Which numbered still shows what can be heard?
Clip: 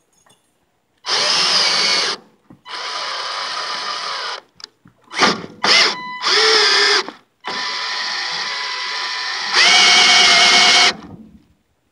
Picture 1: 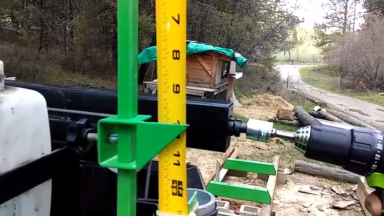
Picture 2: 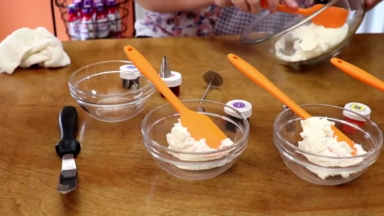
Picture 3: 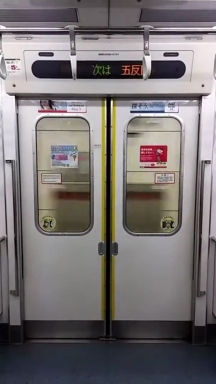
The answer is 1